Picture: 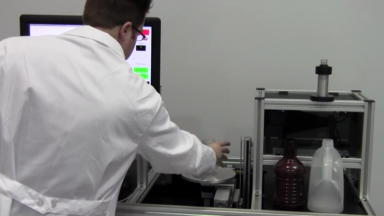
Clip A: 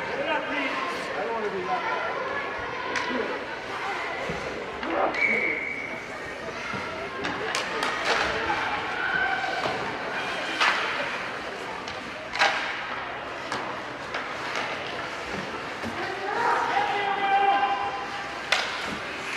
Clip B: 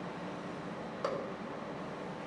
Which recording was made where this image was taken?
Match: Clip B